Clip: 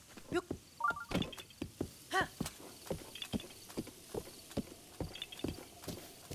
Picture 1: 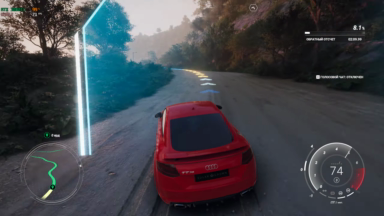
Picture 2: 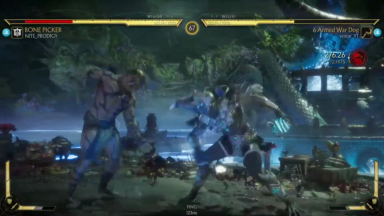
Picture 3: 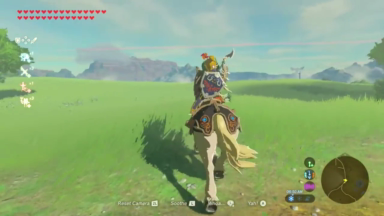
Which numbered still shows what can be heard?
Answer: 3